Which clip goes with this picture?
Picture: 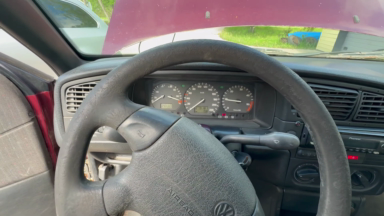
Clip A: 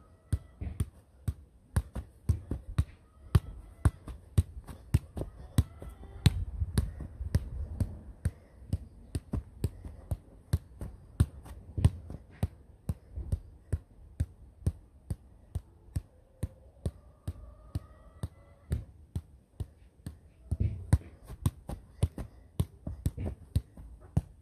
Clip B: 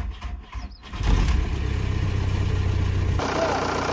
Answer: B